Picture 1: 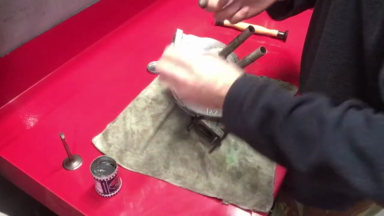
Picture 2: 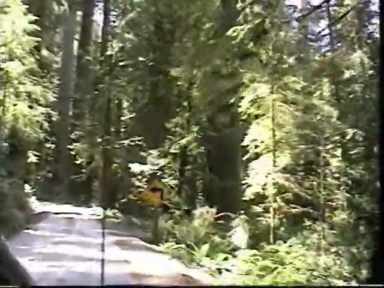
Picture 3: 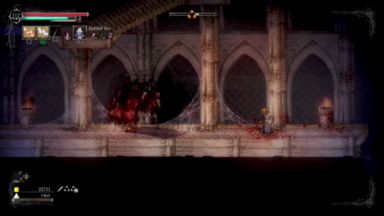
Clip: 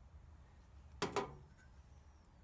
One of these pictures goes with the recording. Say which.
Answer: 1